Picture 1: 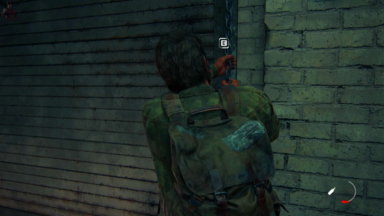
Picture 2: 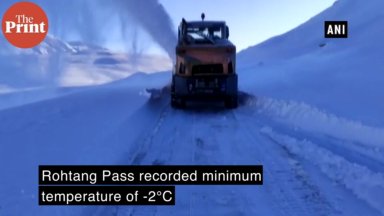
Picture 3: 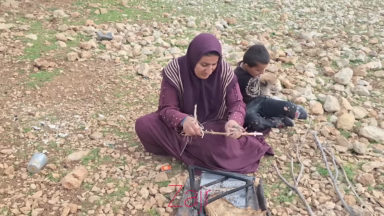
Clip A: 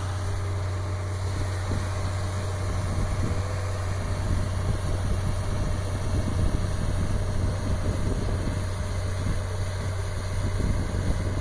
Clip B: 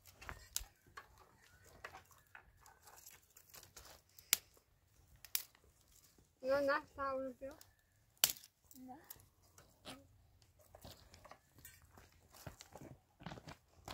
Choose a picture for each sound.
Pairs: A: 2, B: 3